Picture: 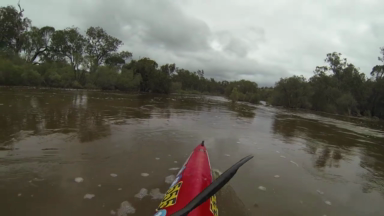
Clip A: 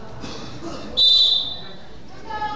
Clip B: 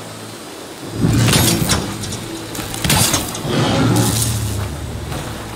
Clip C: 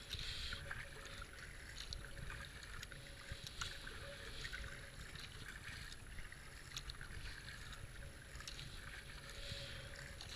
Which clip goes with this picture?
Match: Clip C